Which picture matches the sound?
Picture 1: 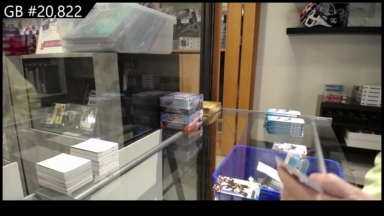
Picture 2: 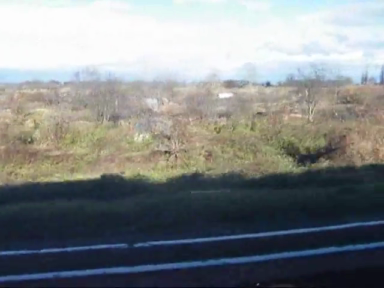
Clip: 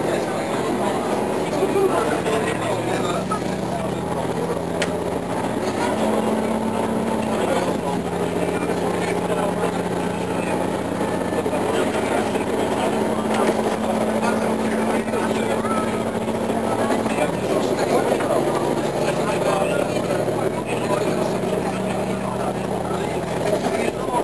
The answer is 2